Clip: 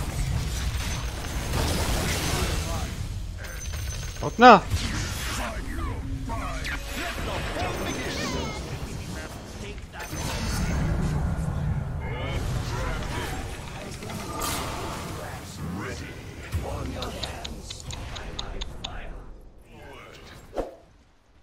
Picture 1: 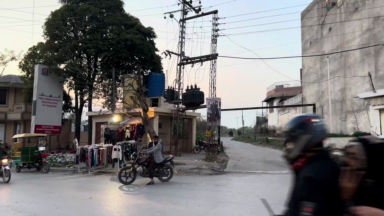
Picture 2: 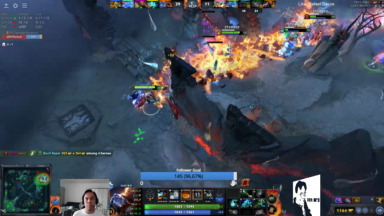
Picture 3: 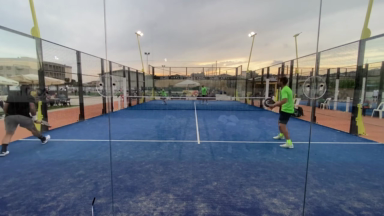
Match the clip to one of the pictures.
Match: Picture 2